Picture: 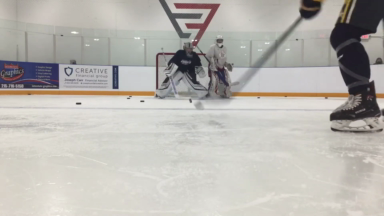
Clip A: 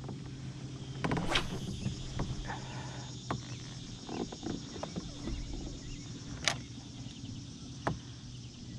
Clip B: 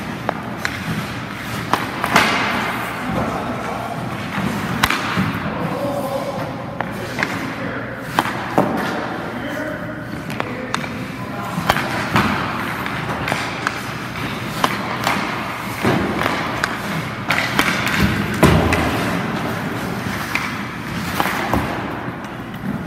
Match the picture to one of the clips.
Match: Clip B